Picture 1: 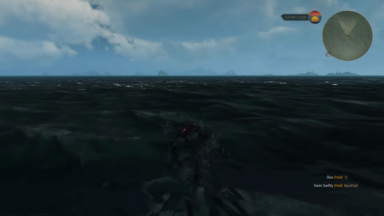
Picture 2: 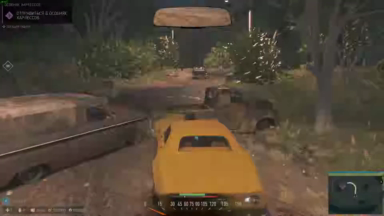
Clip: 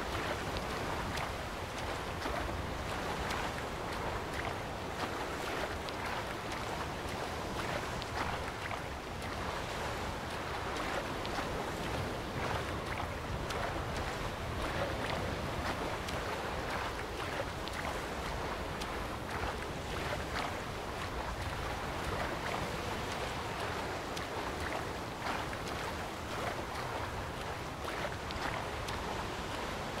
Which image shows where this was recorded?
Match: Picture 1